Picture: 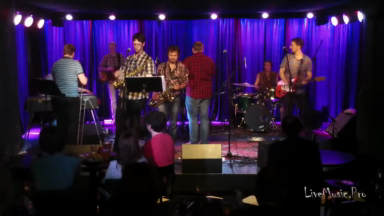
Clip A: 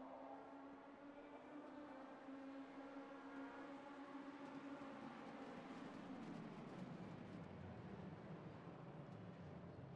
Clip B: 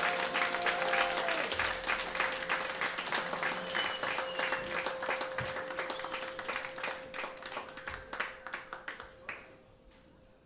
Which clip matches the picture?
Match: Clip B